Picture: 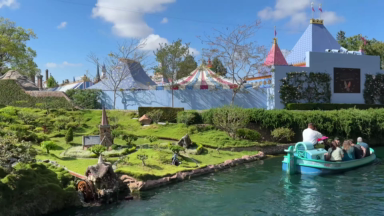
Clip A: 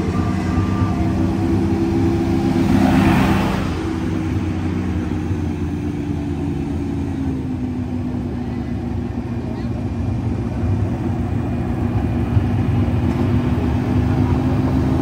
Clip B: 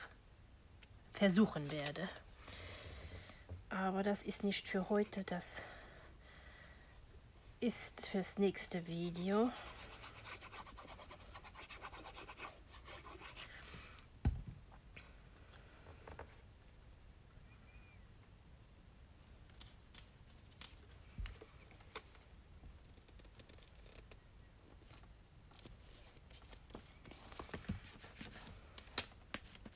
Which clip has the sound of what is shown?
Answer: A